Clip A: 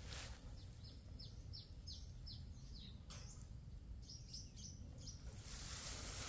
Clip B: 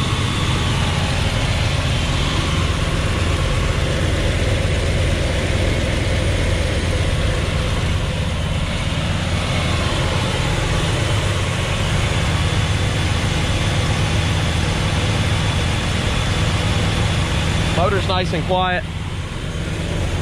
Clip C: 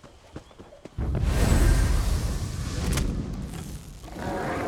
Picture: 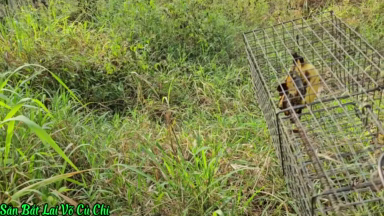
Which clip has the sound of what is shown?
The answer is A